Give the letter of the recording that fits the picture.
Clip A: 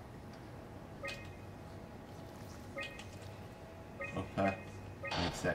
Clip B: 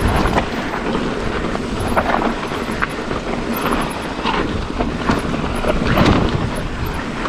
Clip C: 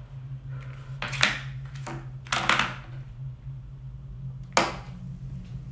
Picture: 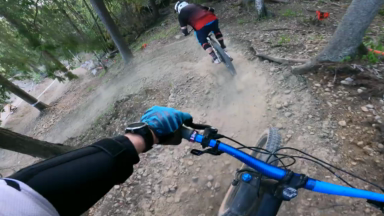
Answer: B